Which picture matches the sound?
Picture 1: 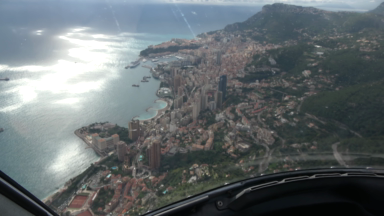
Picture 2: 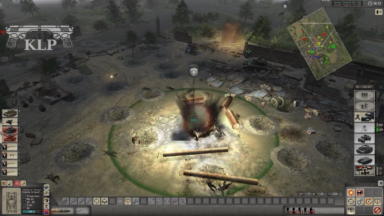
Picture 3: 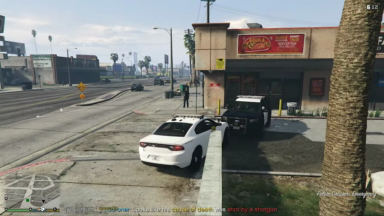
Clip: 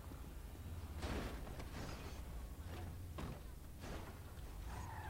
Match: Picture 3